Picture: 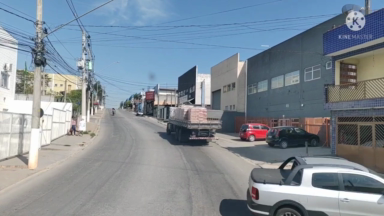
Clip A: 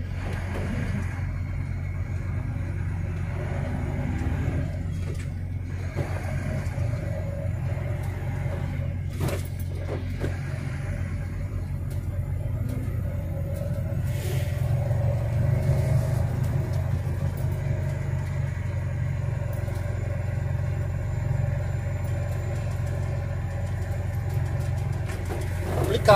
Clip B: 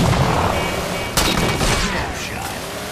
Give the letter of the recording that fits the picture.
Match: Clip A